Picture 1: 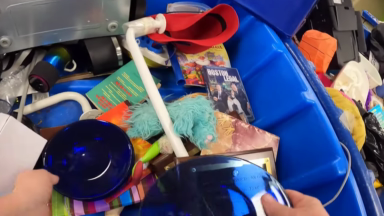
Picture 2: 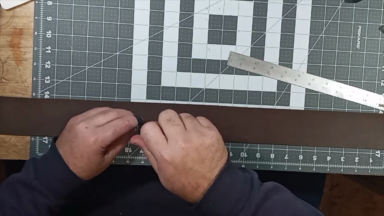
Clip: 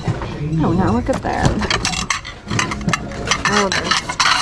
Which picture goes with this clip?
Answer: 1